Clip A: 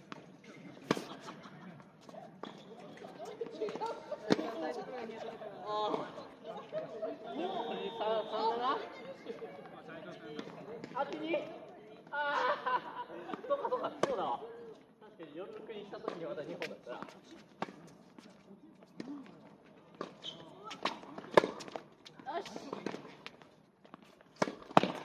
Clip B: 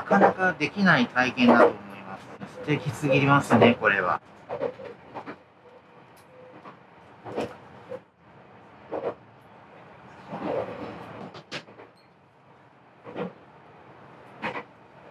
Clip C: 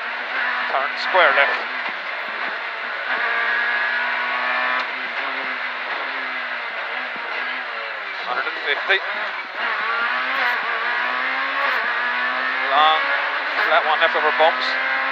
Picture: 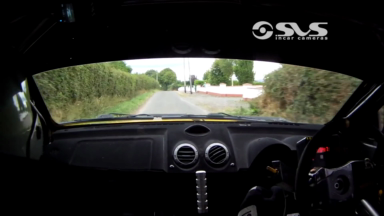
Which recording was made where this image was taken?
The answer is C